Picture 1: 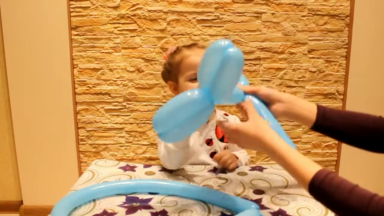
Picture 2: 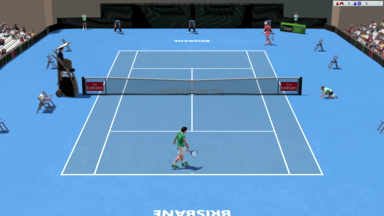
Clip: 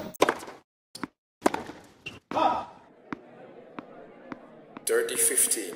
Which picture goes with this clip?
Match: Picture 2